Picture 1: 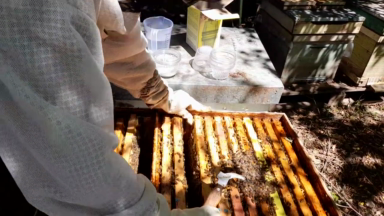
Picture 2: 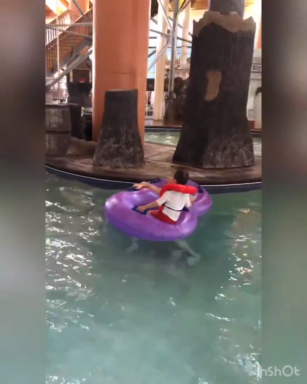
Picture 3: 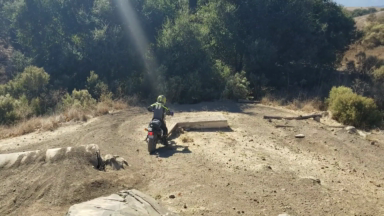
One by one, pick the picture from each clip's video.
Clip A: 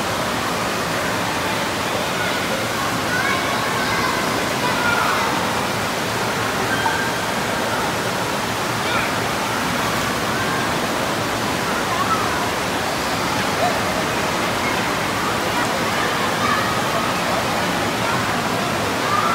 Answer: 2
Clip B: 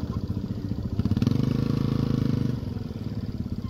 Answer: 3